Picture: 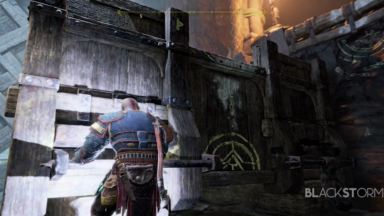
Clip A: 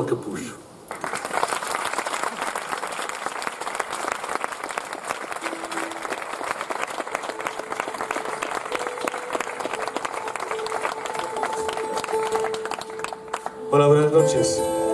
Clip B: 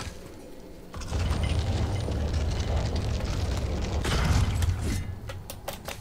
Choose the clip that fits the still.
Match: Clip B